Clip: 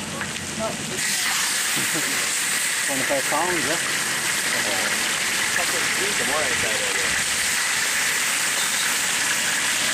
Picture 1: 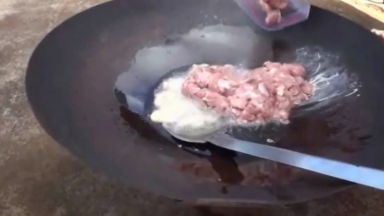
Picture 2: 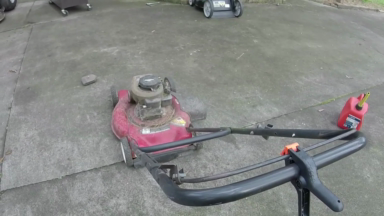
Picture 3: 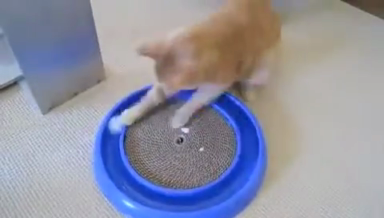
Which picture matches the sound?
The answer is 1